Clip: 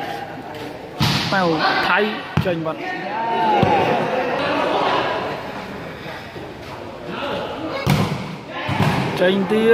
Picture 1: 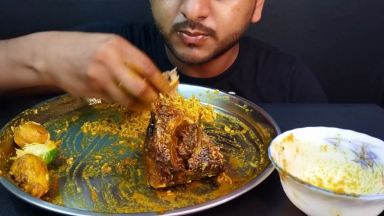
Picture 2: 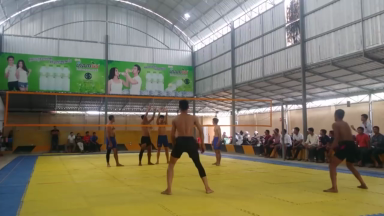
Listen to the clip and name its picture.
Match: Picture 2